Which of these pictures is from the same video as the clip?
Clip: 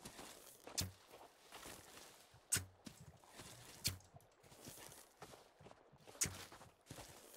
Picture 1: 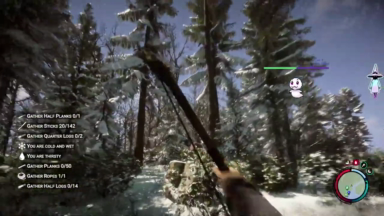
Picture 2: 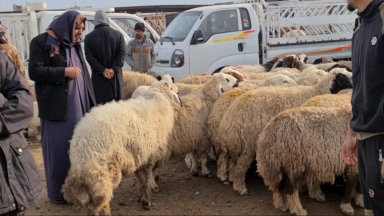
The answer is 1